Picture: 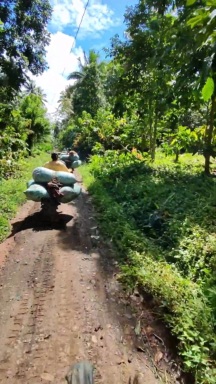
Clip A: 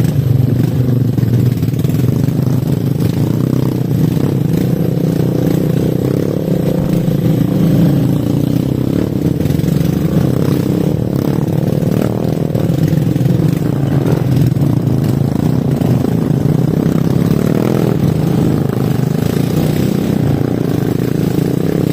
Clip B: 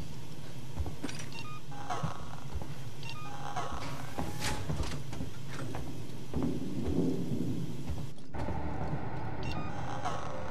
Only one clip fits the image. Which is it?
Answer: A